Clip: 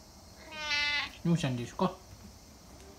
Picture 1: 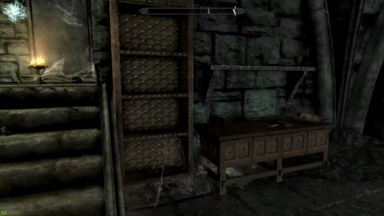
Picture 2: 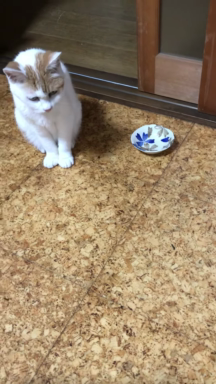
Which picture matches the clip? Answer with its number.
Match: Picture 2